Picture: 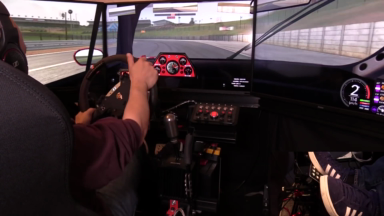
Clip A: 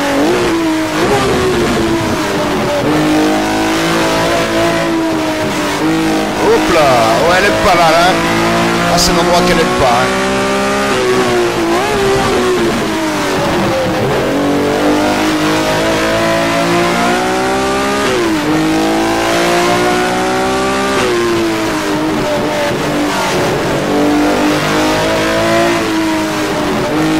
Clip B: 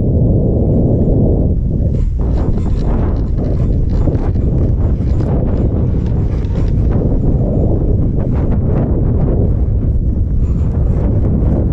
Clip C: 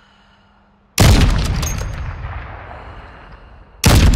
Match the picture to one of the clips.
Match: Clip A